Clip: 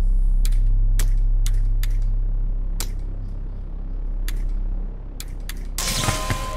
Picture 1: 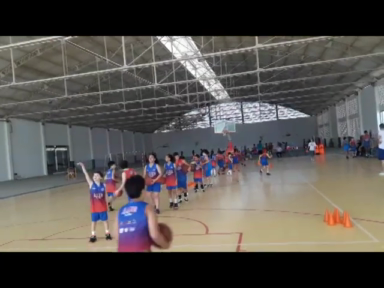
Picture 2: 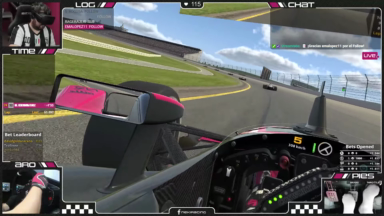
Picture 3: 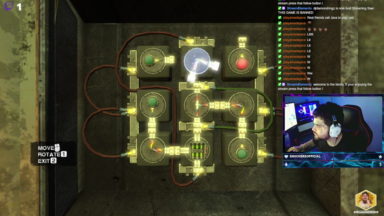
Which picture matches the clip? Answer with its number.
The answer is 3